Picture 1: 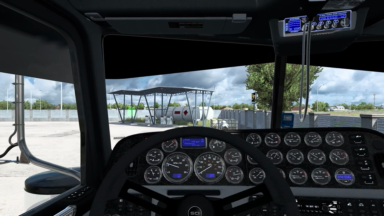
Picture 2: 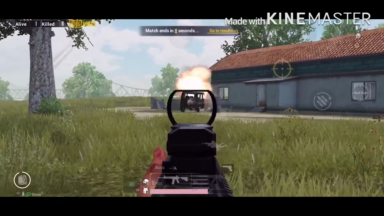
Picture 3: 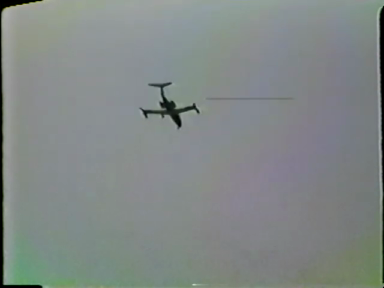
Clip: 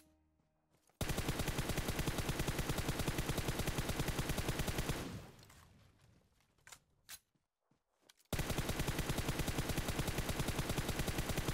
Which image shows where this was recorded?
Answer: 2